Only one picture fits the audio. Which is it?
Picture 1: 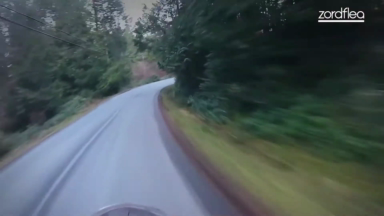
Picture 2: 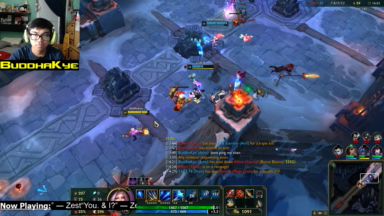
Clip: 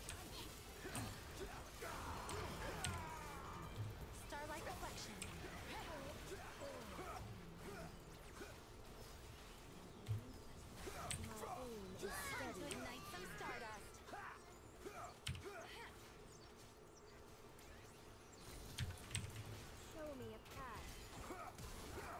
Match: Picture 2